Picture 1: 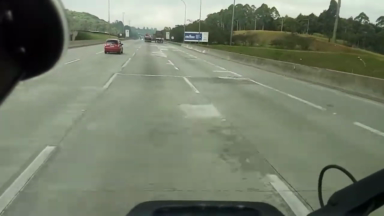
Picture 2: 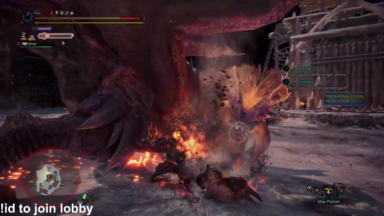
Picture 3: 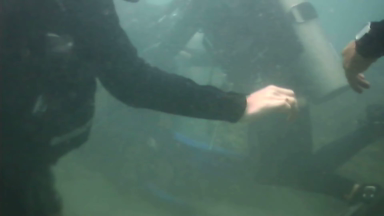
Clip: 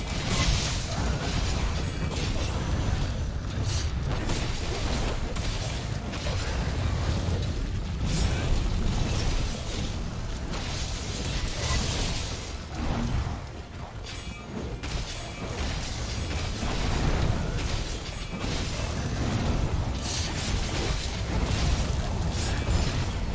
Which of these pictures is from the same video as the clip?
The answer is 2